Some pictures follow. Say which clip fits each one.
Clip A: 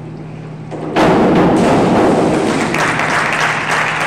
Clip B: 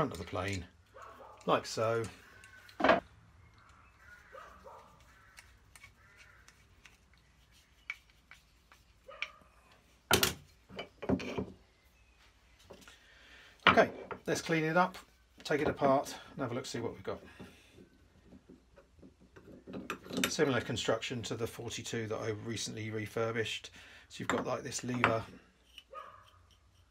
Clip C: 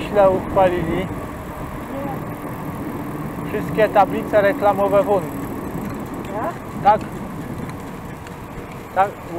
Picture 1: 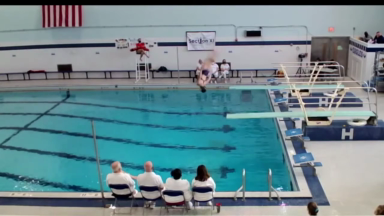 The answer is A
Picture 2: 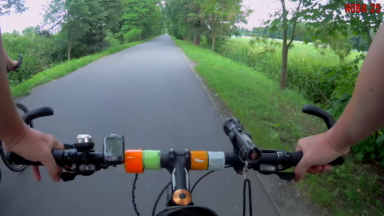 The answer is C